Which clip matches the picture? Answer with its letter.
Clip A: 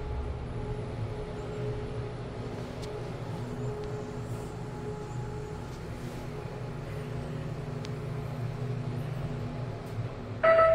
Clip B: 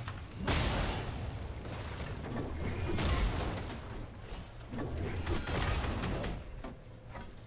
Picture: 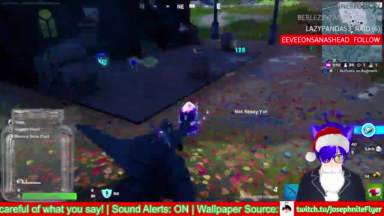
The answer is B